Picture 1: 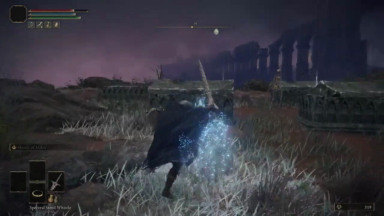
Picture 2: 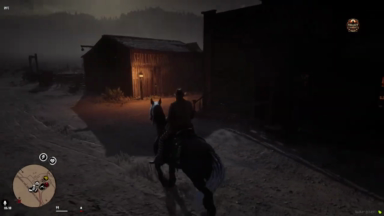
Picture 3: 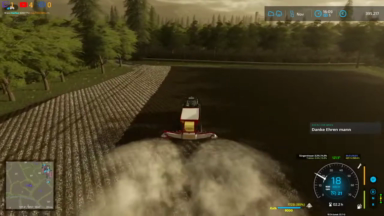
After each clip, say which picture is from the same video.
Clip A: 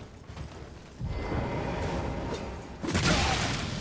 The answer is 1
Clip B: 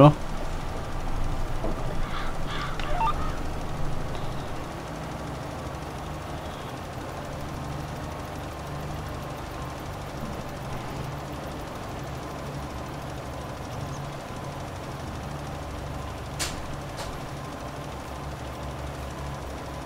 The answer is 3